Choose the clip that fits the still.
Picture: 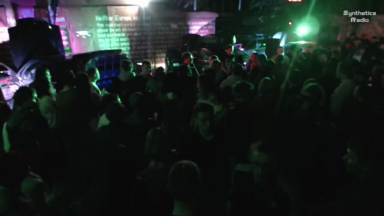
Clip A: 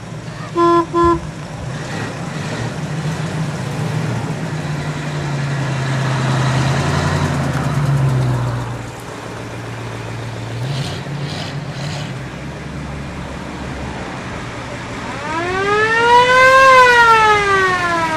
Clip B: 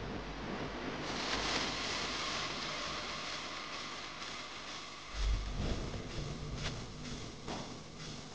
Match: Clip B